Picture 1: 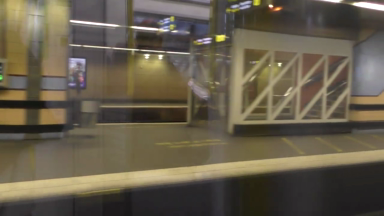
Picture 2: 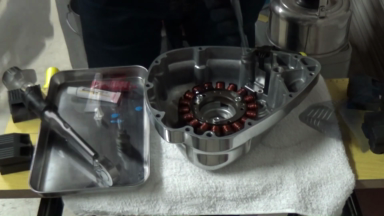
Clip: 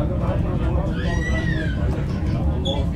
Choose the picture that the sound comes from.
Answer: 1